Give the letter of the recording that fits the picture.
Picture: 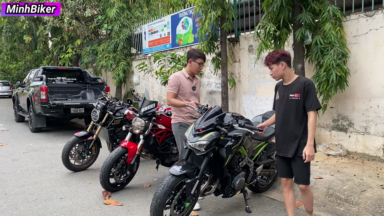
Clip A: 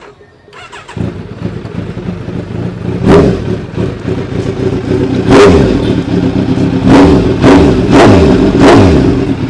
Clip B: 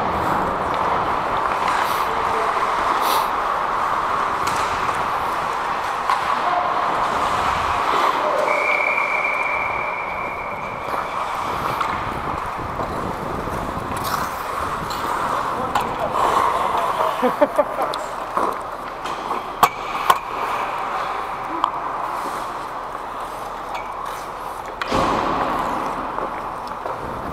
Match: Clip A